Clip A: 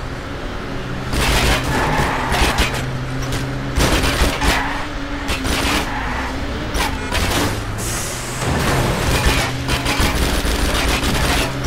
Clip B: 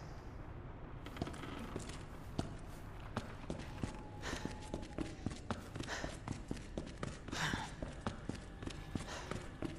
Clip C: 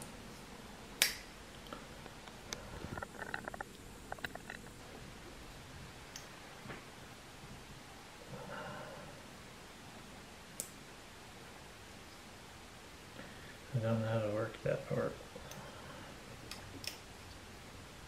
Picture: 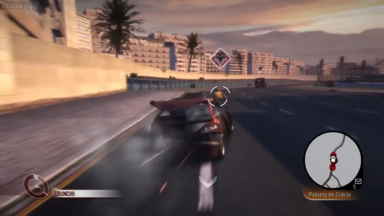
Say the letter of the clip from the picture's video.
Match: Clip A